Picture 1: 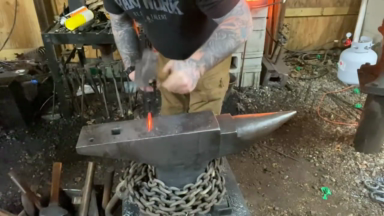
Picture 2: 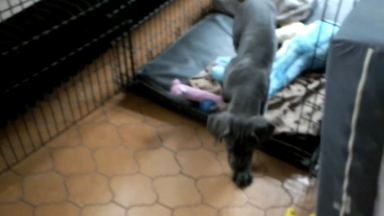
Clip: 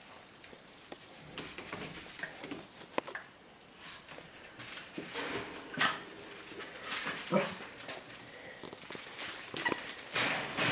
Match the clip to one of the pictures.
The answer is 2